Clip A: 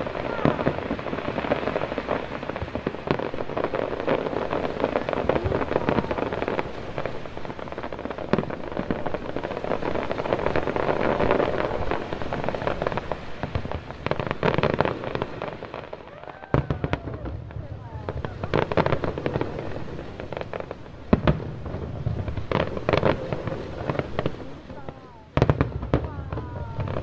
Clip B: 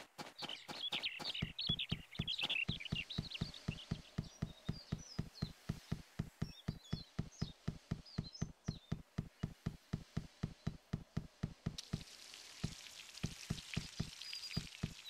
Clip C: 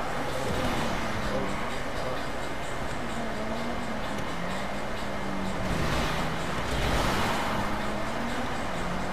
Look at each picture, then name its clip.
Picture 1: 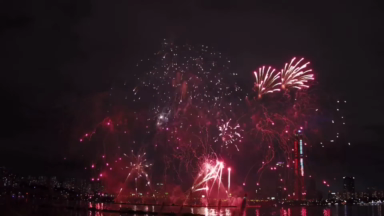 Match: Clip A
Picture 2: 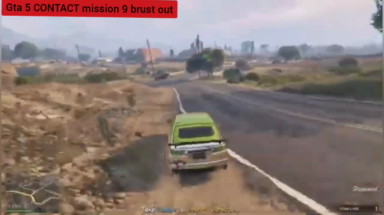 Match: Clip C